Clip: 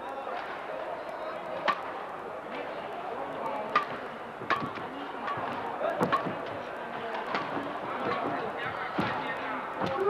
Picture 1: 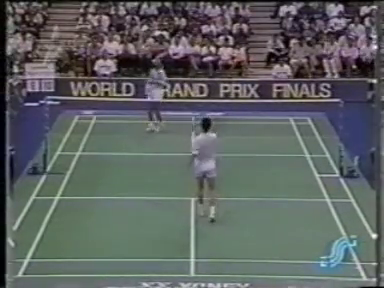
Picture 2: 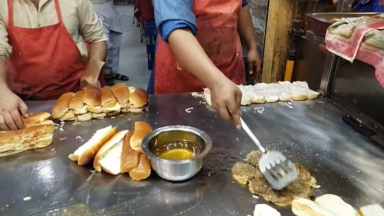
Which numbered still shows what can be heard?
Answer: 1